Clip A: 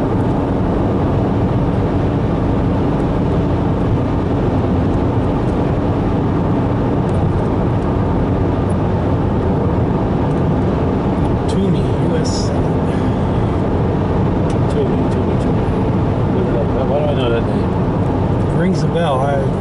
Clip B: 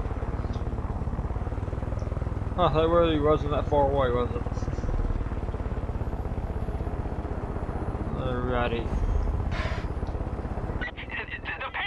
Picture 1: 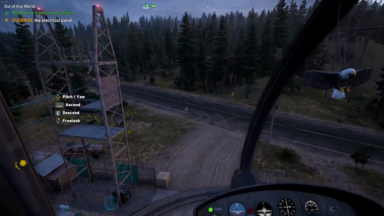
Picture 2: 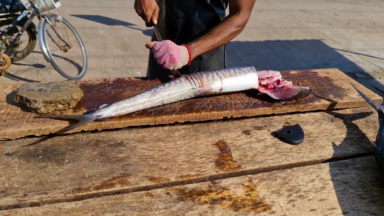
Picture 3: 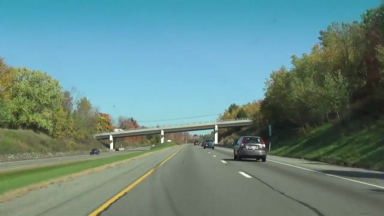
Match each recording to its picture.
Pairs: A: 3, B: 1